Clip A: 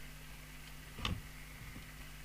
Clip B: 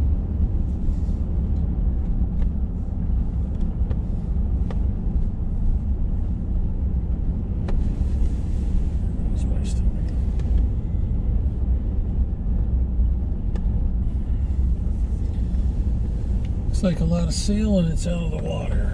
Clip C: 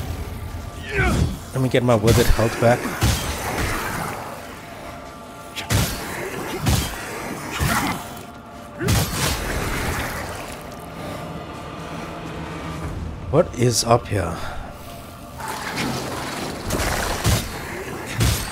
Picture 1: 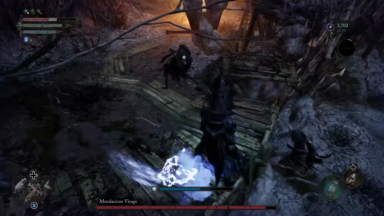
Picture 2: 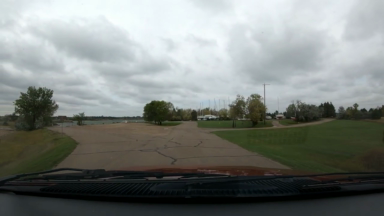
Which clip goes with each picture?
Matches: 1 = C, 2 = B